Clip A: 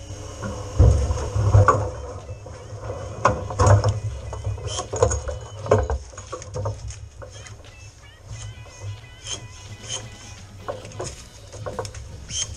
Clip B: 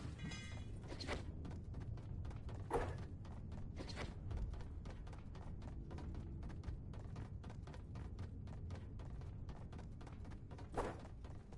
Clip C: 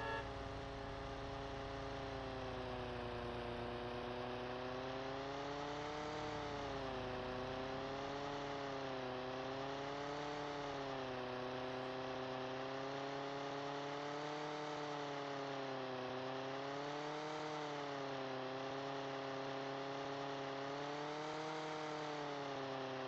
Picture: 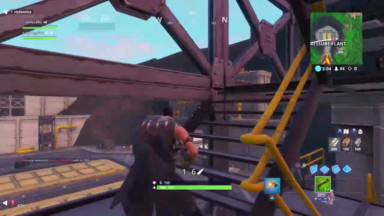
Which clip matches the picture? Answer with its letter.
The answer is B